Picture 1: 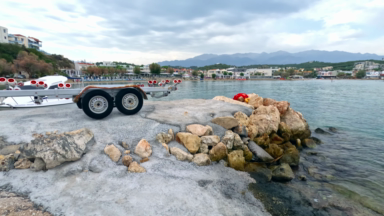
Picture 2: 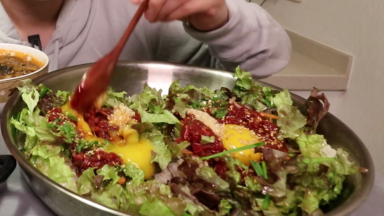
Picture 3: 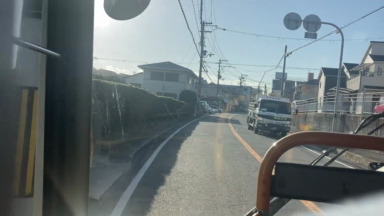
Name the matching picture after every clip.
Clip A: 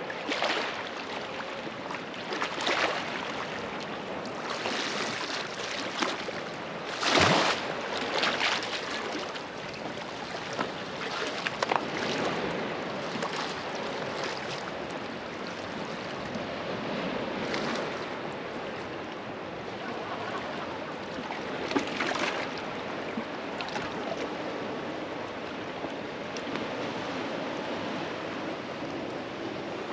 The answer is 1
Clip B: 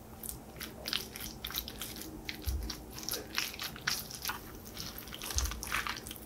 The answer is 2